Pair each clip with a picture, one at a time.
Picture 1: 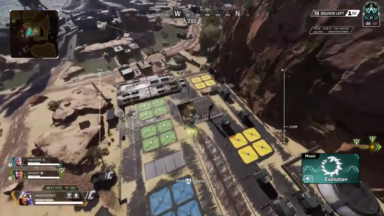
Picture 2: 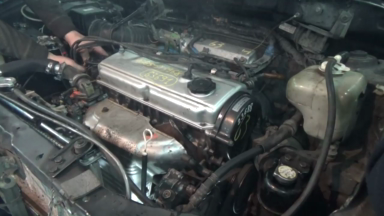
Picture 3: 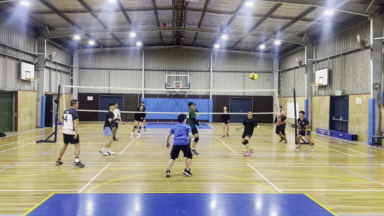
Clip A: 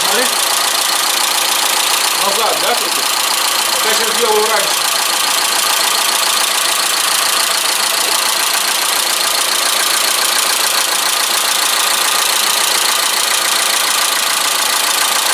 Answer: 2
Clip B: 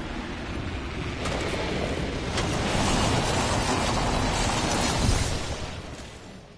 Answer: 1